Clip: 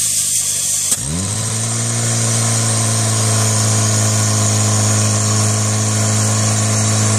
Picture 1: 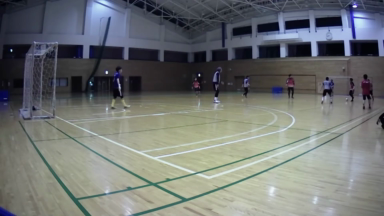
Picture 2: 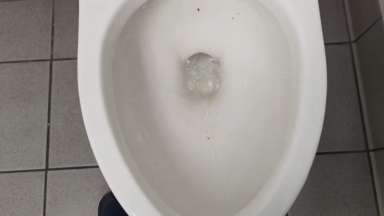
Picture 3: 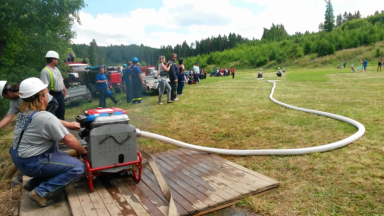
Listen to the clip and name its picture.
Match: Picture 3